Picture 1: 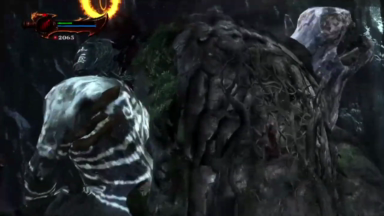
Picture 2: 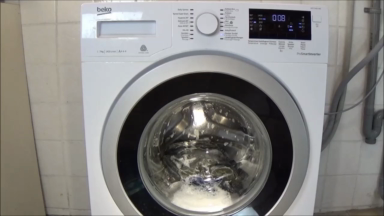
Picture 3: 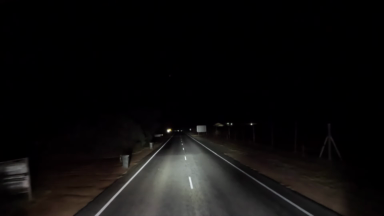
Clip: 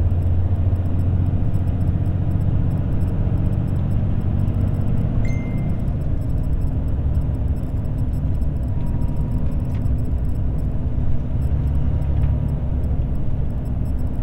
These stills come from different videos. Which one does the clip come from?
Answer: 3